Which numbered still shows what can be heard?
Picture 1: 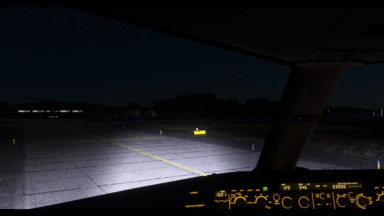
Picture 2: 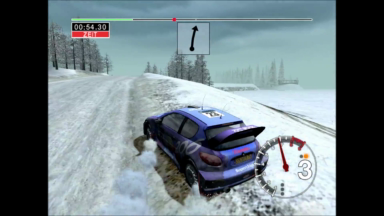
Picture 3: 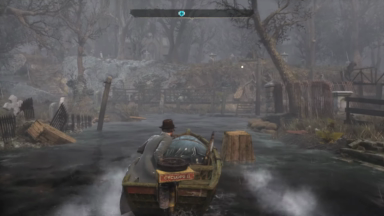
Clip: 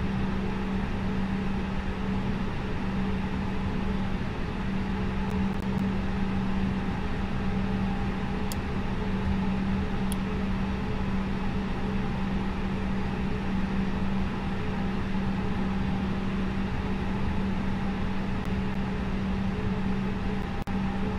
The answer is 1